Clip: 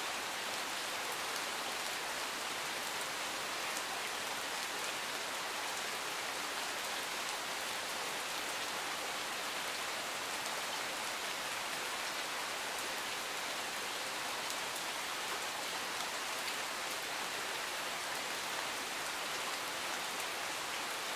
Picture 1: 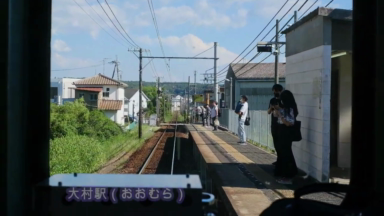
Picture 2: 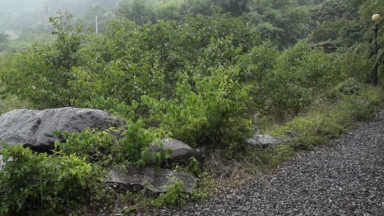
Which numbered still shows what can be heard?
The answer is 2